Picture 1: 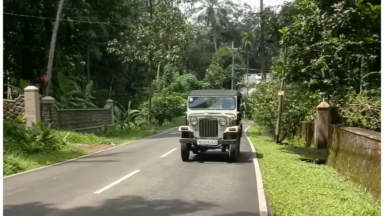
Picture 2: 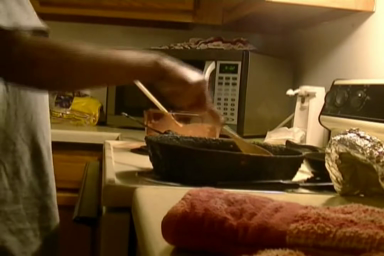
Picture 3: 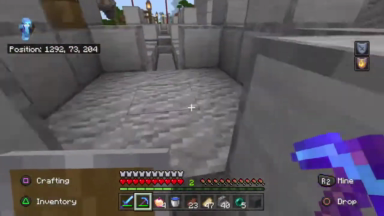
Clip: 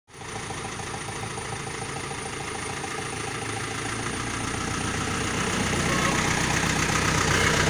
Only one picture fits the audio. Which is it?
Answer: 1